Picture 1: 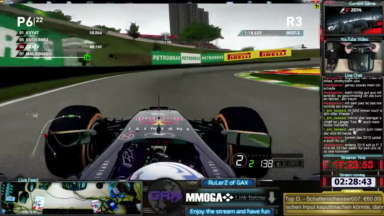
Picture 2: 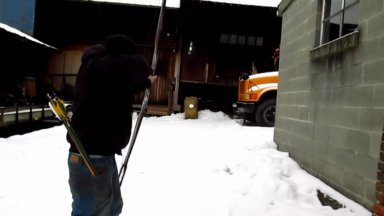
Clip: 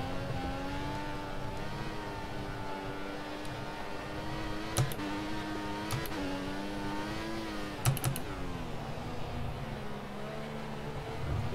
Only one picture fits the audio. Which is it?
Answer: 1